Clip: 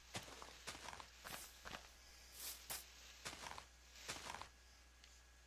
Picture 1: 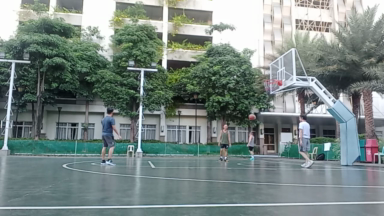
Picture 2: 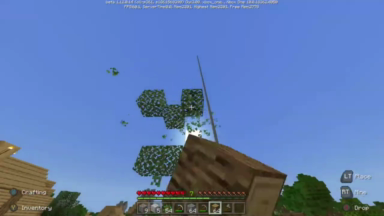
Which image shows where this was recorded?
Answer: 2